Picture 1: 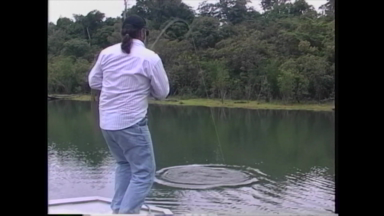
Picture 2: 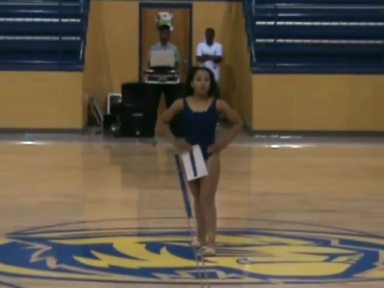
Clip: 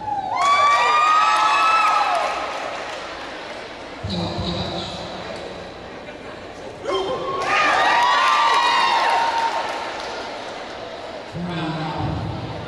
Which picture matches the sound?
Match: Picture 2